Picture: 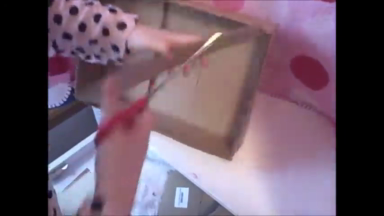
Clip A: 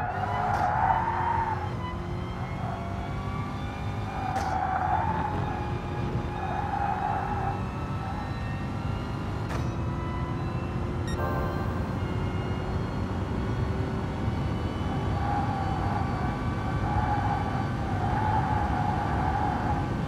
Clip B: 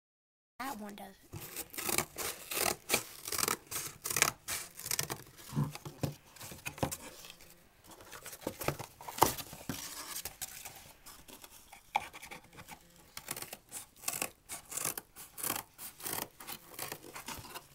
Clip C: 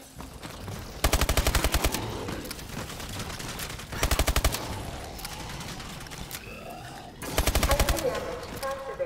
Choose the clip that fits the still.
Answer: B